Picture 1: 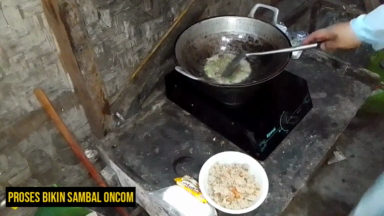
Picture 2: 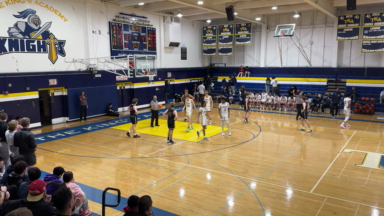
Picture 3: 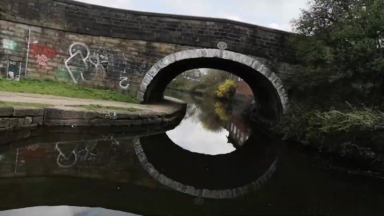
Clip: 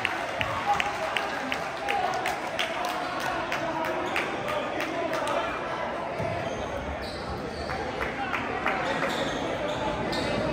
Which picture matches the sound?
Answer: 2